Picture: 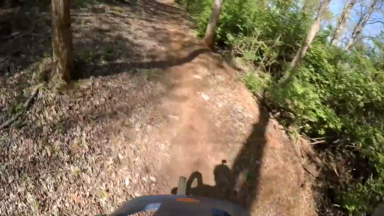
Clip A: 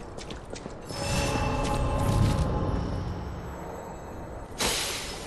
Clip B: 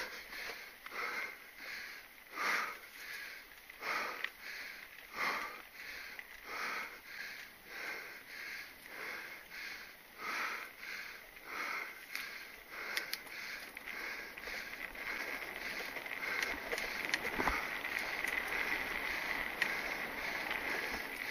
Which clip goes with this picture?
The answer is B